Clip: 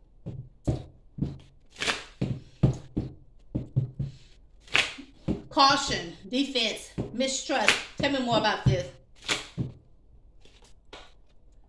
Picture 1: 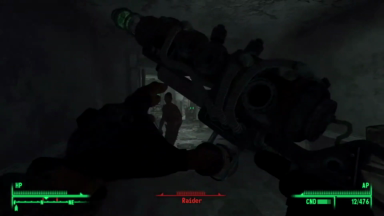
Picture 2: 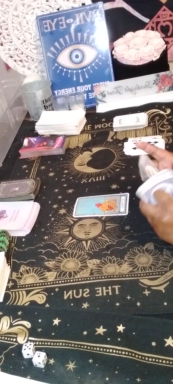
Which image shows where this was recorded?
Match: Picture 2